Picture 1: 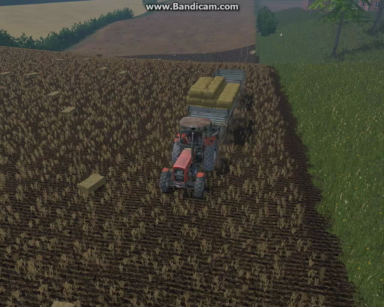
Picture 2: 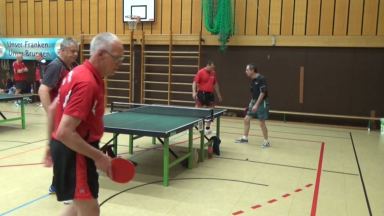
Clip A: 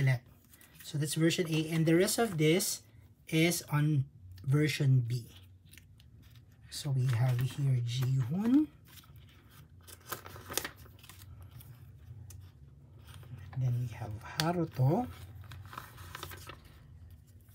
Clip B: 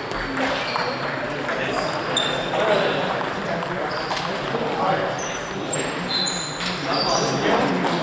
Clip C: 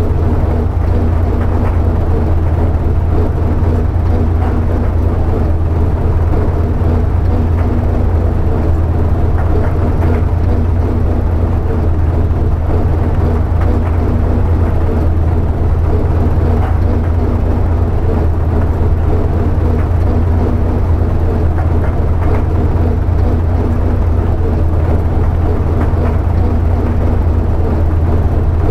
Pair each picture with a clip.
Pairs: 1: C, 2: B